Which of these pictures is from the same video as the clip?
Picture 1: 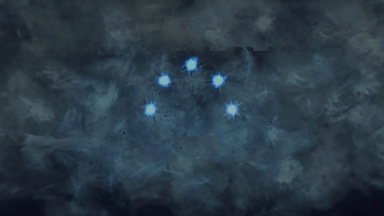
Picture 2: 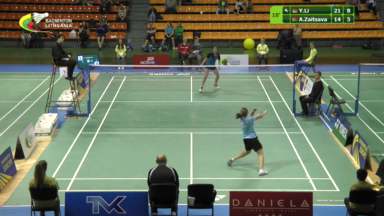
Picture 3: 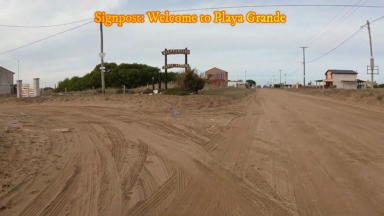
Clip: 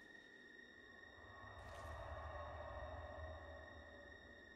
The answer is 1